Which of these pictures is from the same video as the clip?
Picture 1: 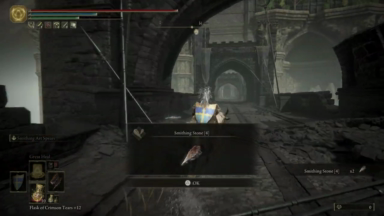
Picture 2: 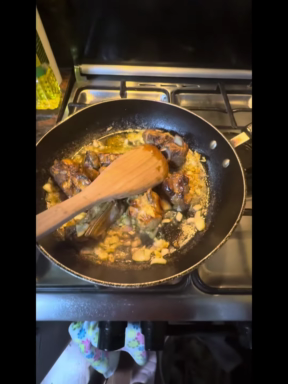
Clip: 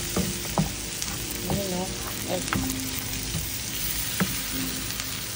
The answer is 2